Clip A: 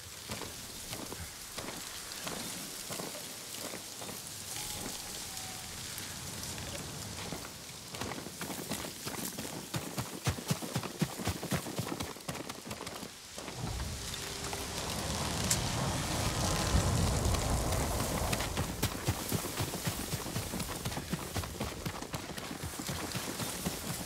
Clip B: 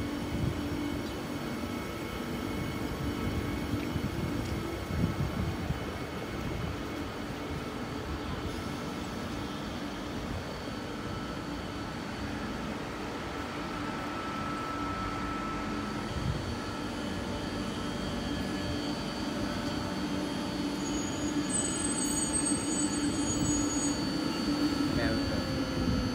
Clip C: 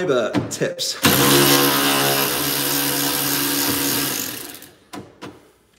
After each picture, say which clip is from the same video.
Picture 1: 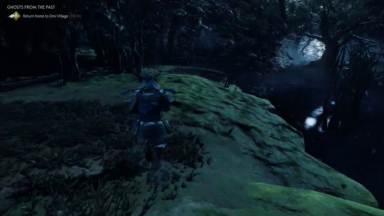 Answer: A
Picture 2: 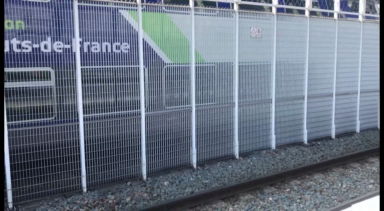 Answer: B